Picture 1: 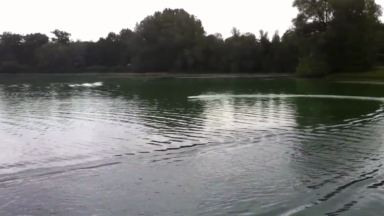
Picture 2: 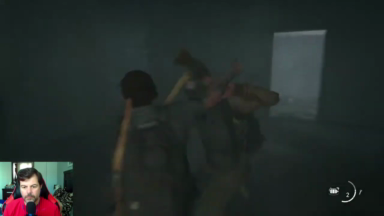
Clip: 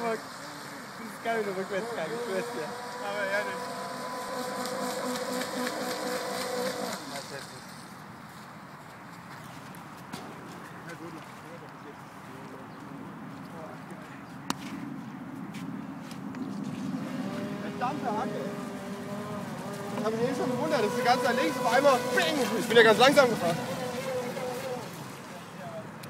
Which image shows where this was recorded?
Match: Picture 1